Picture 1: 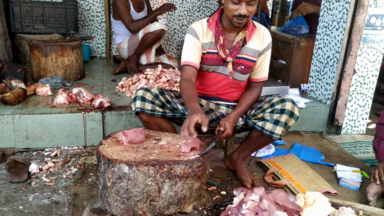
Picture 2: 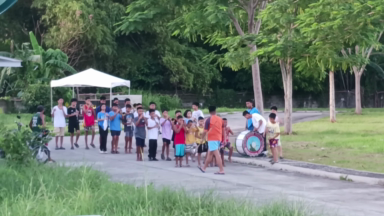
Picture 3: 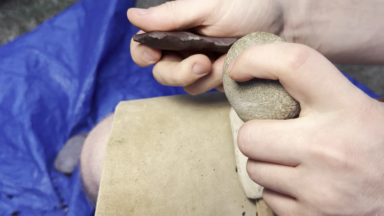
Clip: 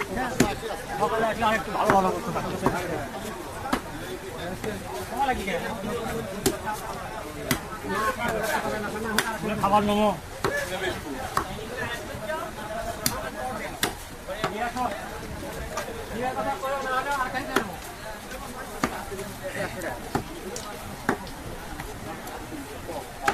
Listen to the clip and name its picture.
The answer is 1